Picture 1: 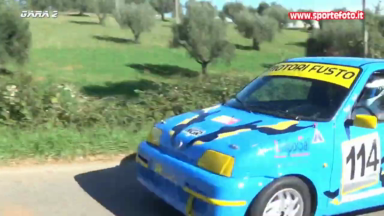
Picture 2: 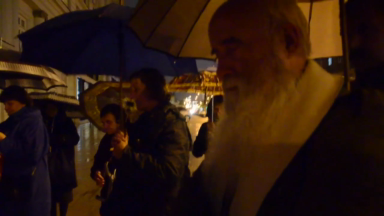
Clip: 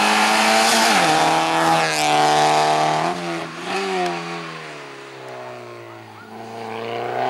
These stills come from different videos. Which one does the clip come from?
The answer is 1